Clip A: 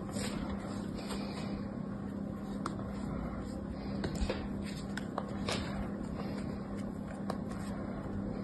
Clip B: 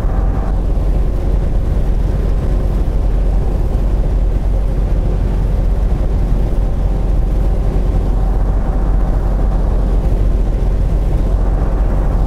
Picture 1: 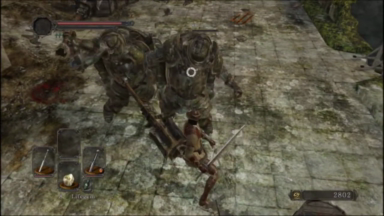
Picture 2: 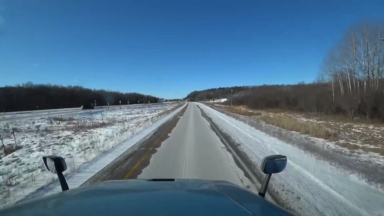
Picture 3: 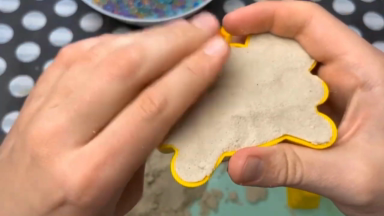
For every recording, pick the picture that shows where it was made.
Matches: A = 3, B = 2